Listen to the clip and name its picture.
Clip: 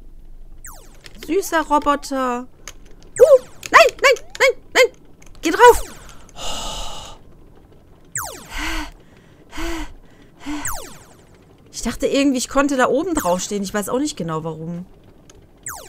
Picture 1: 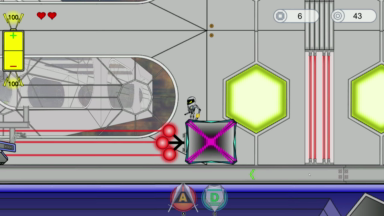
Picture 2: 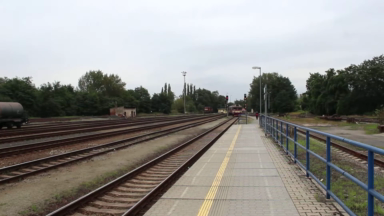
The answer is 1